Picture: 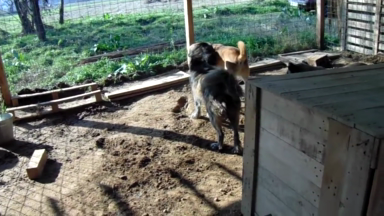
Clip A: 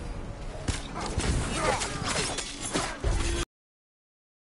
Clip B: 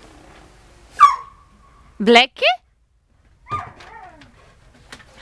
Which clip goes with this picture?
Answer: B